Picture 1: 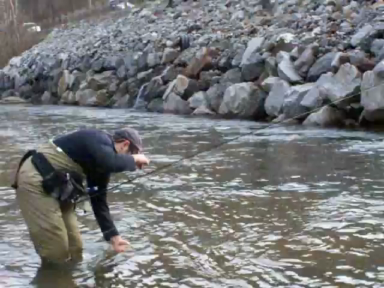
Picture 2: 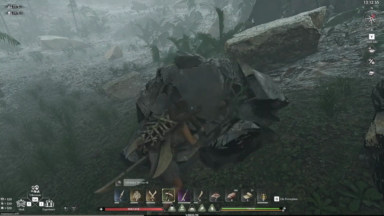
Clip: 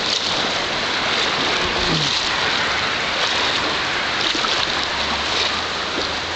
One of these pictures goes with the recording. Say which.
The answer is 1